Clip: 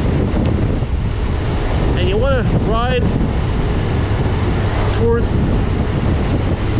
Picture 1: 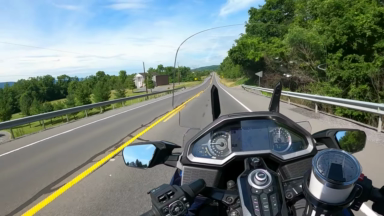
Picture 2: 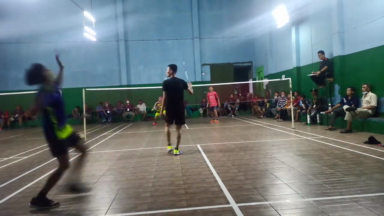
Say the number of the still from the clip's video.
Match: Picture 1